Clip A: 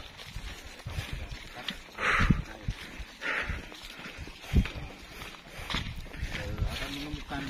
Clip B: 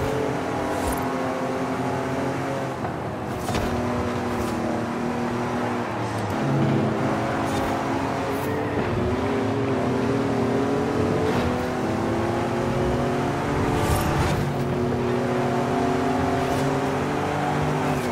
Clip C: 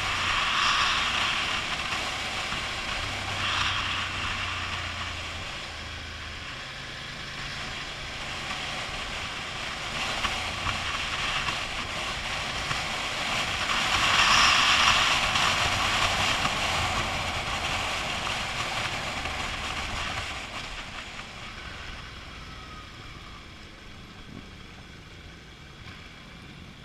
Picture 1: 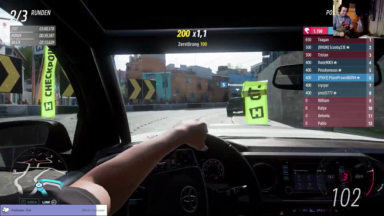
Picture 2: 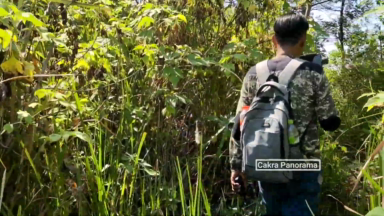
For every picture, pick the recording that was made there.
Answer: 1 B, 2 A